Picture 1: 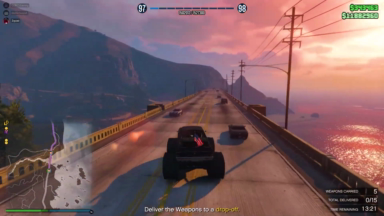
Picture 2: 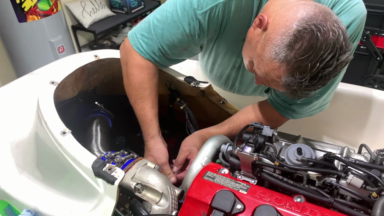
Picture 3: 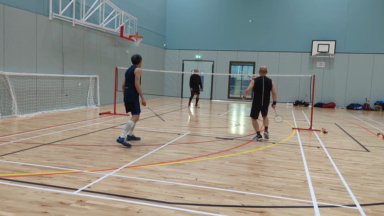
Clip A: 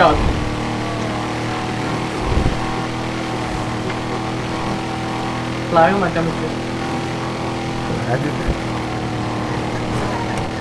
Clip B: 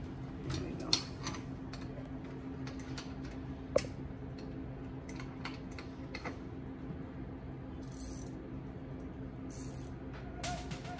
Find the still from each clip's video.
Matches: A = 1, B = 2